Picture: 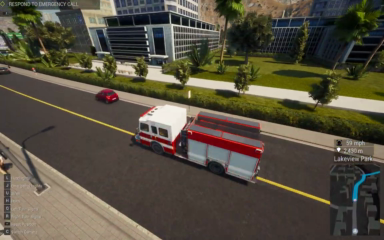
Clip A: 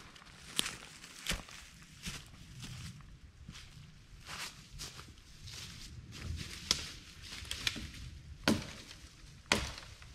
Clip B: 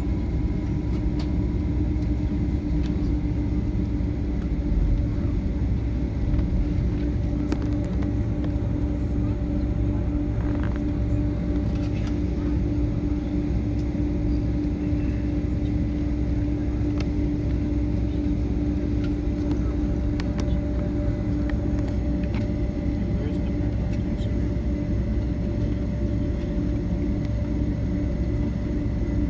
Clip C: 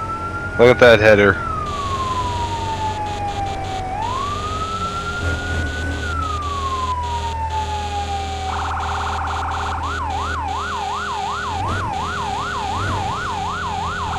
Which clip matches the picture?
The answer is C